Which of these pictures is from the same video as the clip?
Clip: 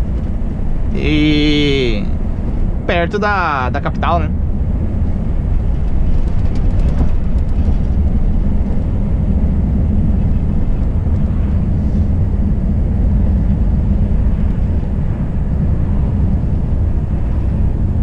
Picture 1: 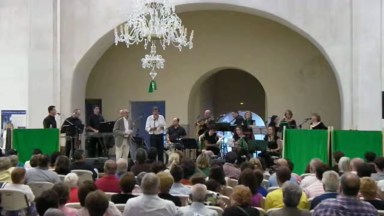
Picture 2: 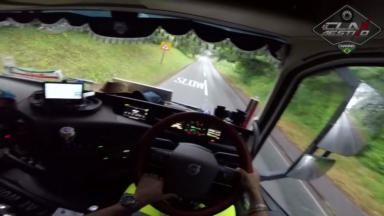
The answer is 2